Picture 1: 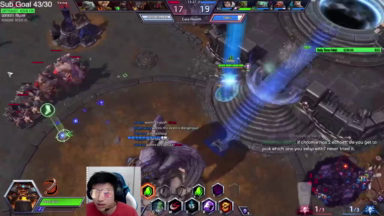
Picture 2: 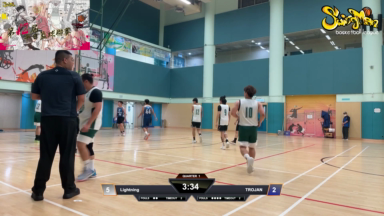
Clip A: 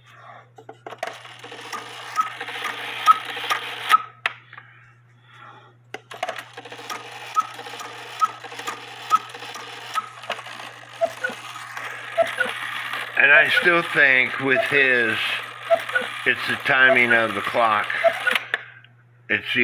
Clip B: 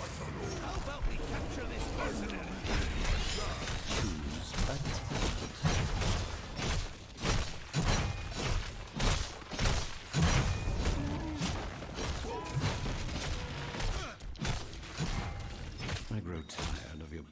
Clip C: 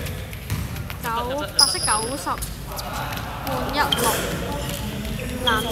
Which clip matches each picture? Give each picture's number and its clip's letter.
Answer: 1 B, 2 C